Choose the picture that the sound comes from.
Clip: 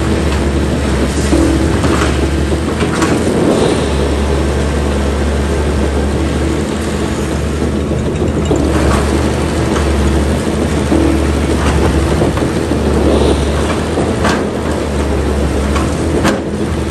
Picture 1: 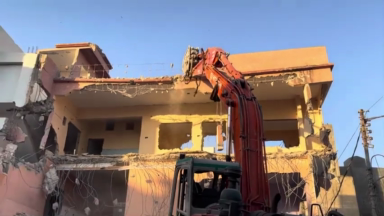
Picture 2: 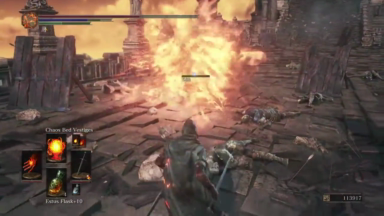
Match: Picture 1